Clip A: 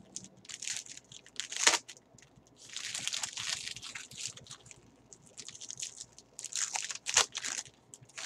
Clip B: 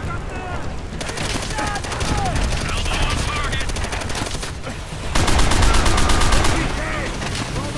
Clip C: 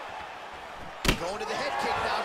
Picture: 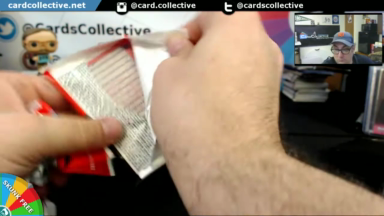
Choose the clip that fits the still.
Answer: A